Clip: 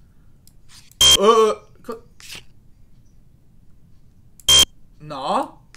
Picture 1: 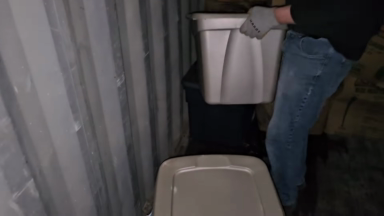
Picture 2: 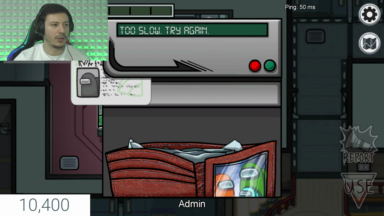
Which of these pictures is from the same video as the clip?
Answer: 2